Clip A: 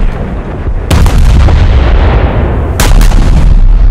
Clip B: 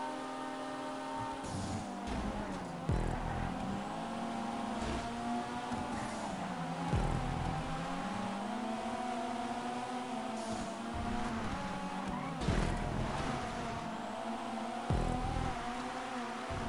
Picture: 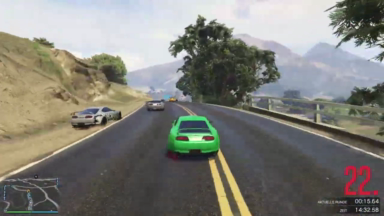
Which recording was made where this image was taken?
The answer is B